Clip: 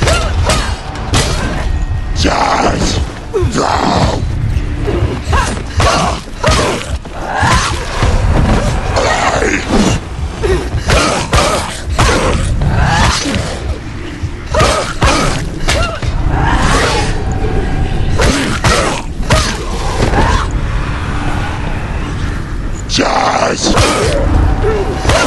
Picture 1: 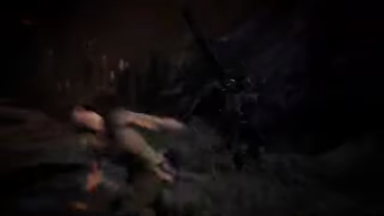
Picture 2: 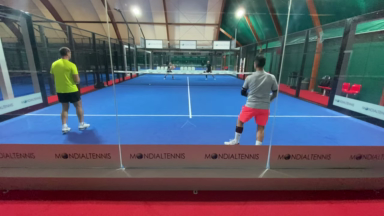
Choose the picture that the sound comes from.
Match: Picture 1